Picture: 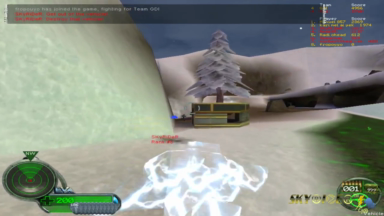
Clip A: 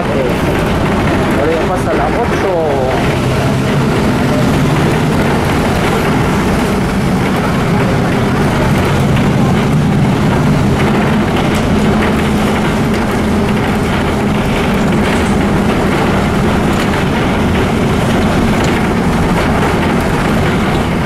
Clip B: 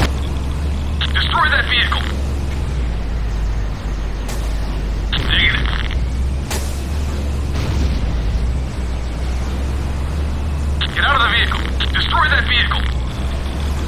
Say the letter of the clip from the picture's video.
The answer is B